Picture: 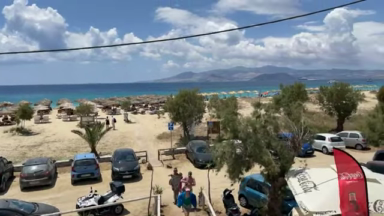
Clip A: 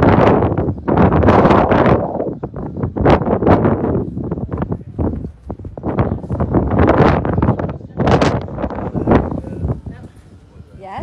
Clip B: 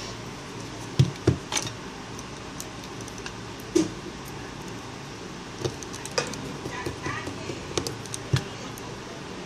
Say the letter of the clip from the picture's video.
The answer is A